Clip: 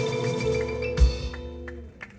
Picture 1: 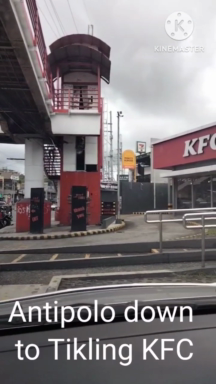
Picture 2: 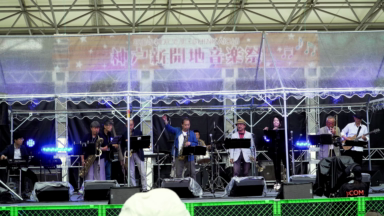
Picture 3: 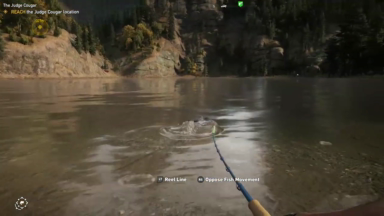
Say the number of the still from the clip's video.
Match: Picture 2